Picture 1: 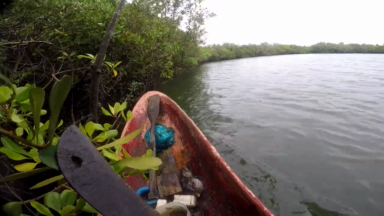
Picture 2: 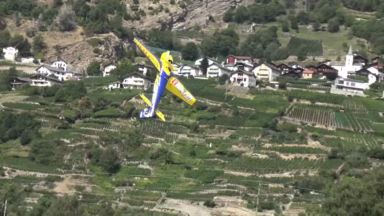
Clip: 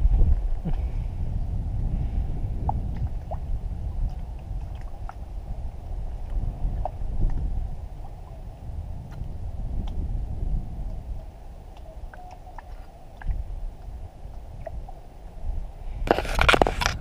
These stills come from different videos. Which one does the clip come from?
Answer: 1